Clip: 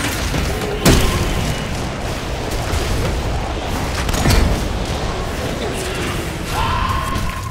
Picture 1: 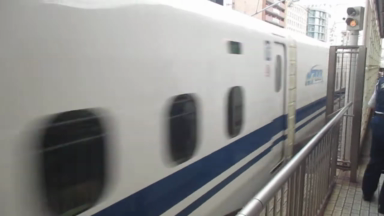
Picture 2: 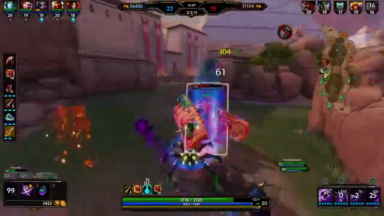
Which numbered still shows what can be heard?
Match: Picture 2